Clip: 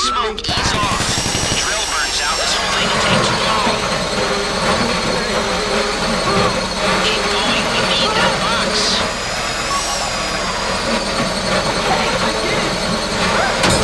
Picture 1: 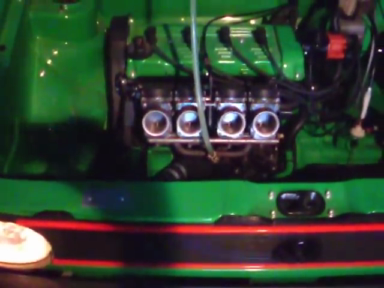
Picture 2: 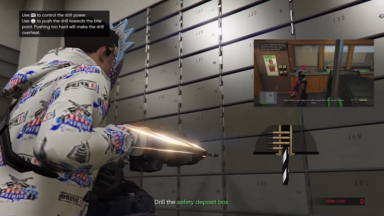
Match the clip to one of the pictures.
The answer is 2